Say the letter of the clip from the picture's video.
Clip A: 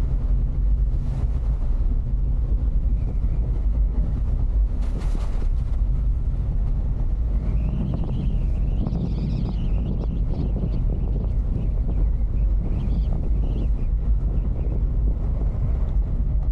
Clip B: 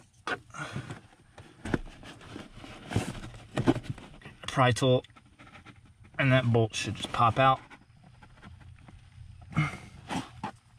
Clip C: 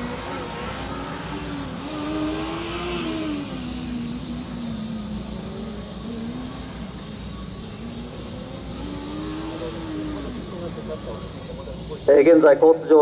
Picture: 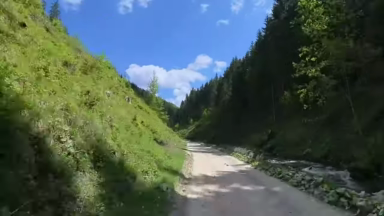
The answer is A